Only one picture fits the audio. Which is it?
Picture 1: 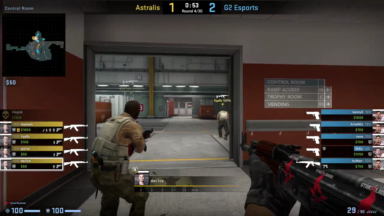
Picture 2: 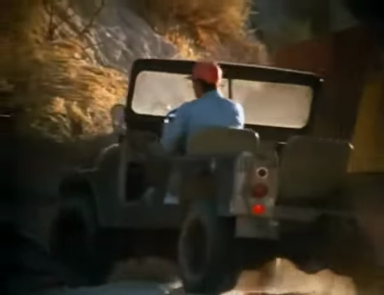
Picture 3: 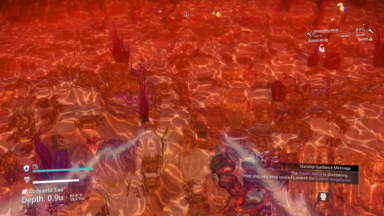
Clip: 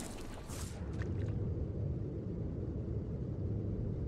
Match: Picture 3